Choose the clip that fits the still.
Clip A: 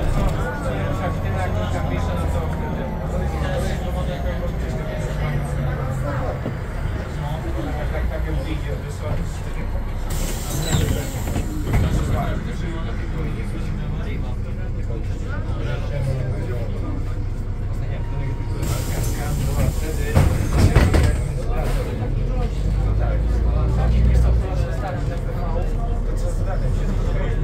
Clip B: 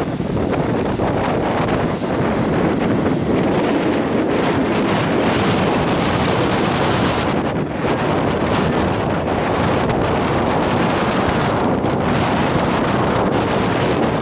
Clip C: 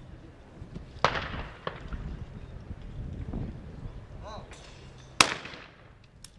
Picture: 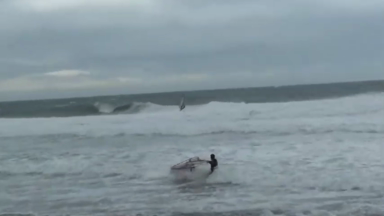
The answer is B